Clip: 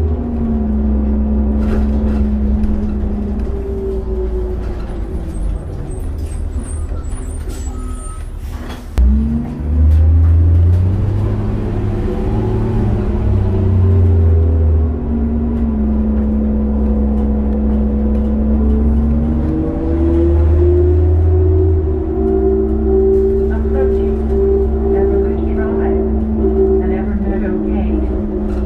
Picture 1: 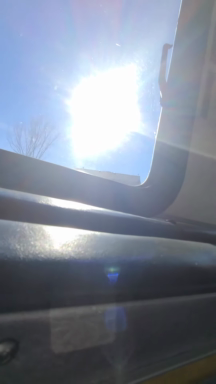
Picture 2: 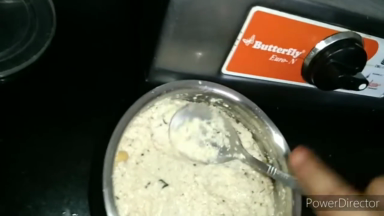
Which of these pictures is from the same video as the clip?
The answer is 1